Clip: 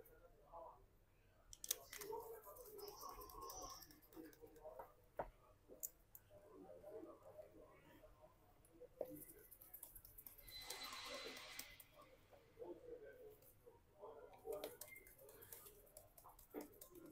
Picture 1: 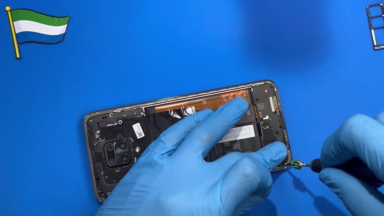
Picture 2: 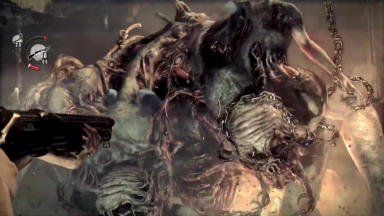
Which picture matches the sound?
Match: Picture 1